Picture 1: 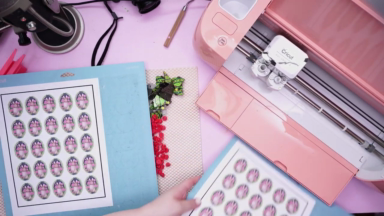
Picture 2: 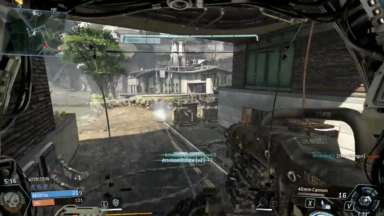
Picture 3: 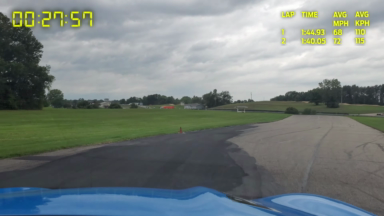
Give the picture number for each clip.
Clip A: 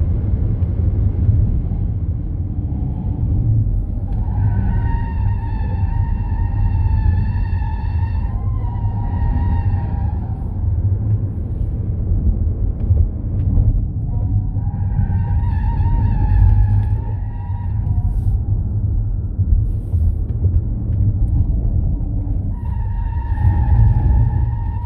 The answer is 3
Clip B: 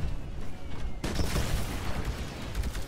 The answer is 2